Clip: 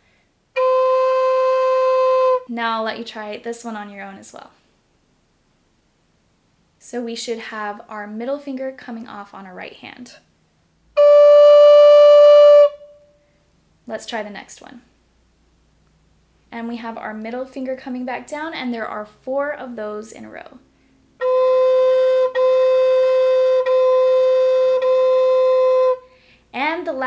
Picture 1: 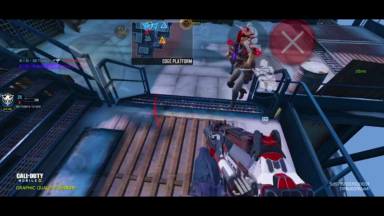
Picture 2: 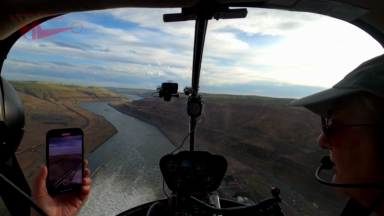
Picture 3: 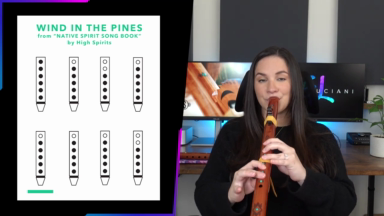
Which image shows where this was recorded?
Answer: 3